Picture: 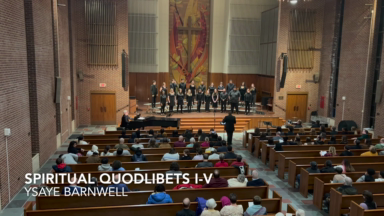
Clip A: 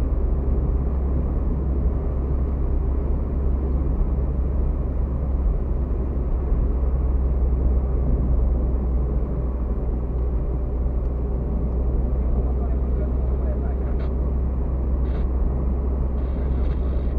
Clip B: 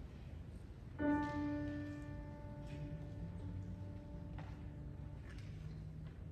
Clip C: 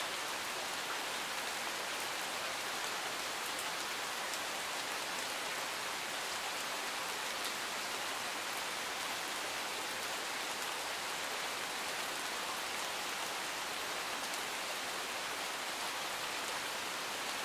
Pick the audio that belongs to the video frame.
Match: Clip B